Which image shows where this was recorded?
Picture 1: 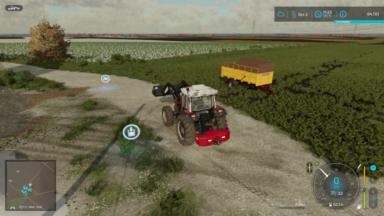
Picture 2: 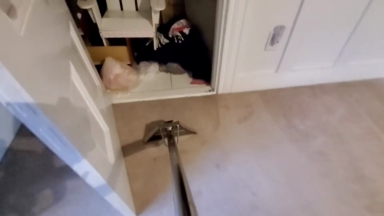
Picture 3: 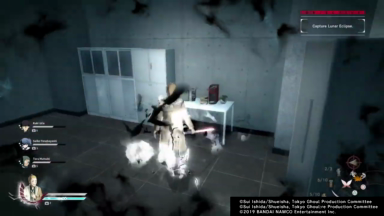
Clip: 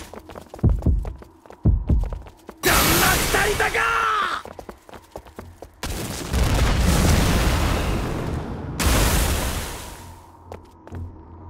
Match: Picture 3